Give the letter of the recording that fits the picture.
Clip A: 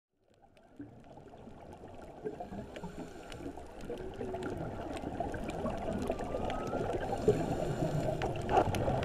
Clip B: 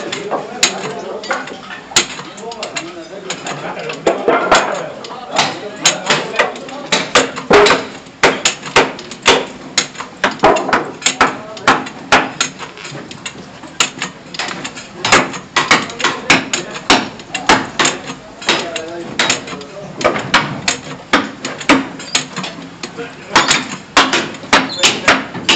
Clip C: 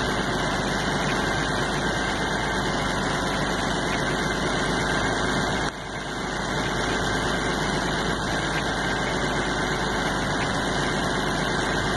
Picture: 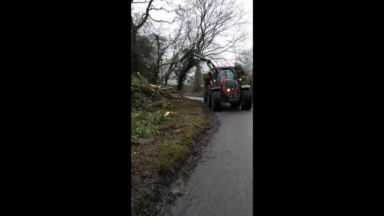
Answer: C